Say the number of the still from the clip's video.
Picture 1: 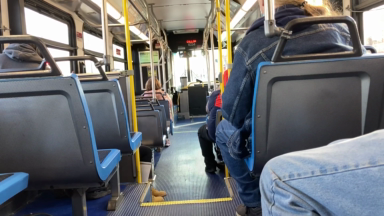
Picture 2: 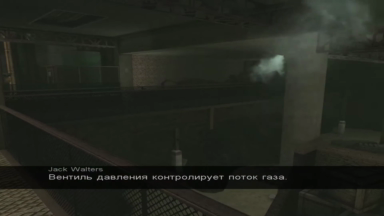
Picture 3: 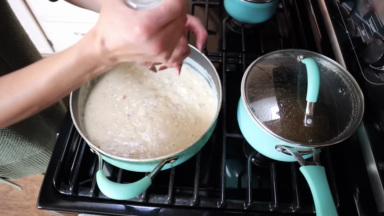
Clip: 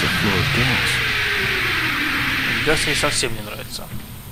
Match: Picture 2